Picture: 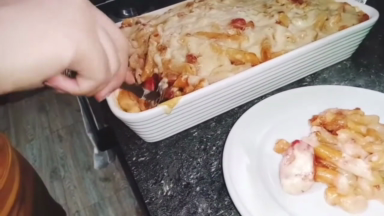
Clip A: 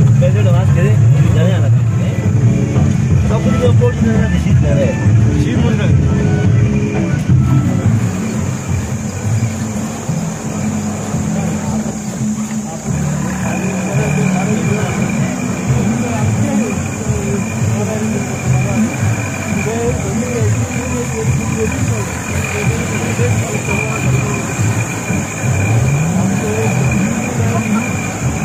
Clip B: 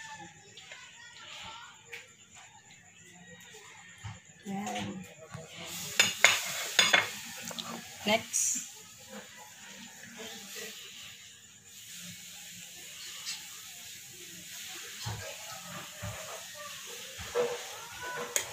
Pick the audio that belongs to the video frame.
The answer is B